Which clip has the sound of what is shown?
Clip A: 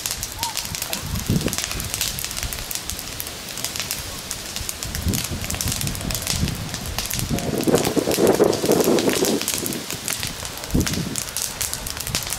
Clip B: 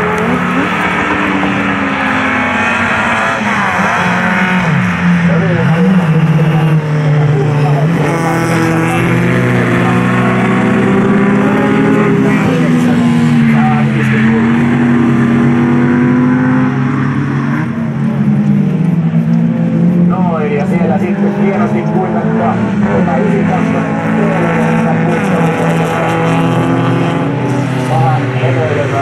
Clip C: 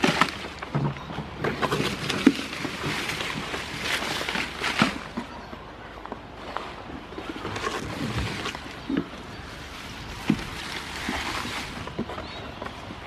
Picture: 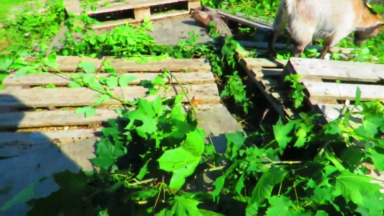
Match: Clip C